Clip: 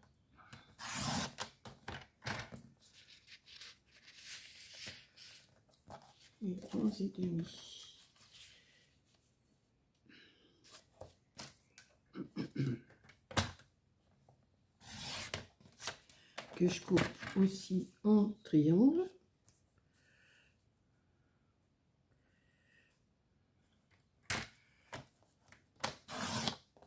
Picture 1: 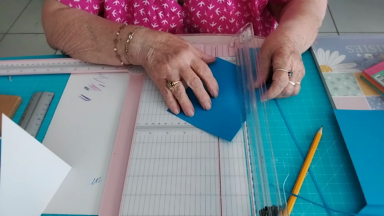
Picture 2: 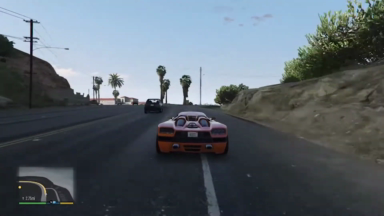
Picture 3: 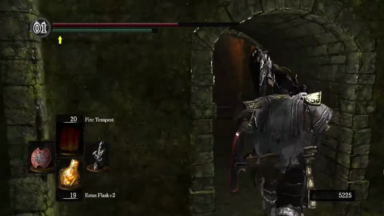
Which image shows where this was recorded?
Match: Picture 1